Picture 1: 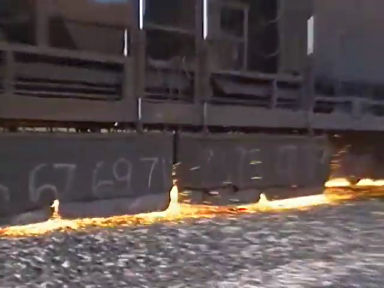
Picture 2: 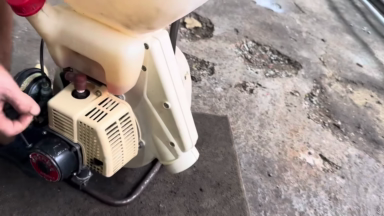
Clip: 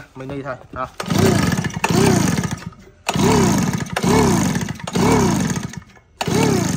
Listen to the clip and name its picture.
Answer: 2